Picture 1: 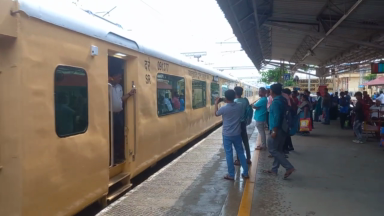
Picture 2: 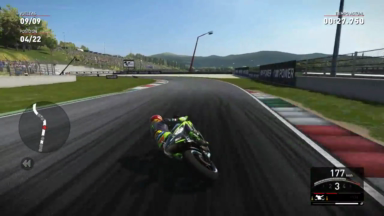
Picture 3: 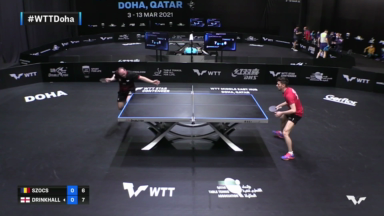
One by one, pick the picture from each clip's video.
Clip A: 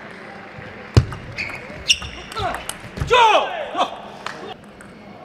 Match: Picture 3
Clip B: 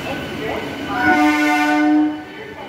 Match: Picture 1